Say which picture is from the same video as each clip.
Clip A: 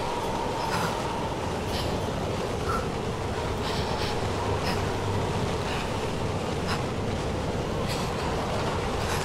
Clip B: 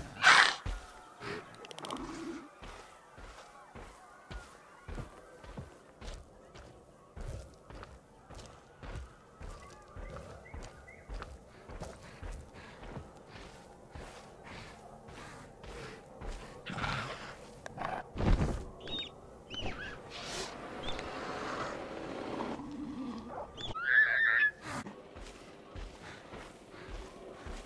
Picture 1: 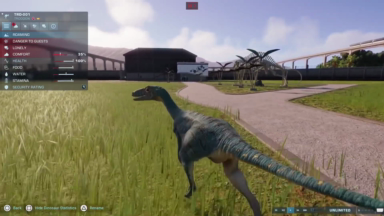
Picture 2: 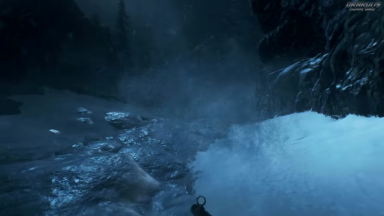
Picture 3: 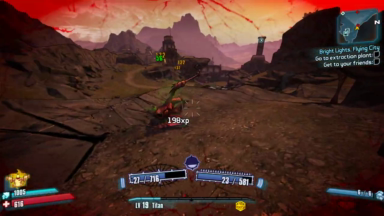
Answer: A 2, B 1